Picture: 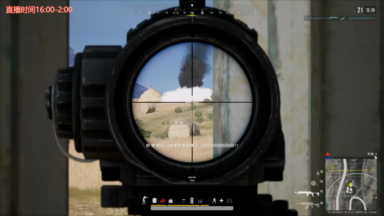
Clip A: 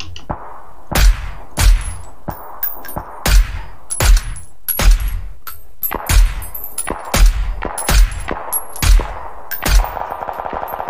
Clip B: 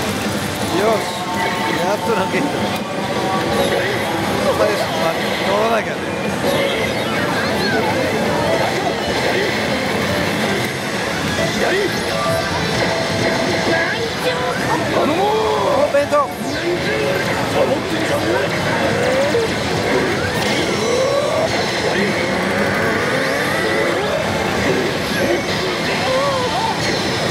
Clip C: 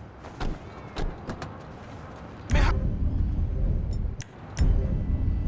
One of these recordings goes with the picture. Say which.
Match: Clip A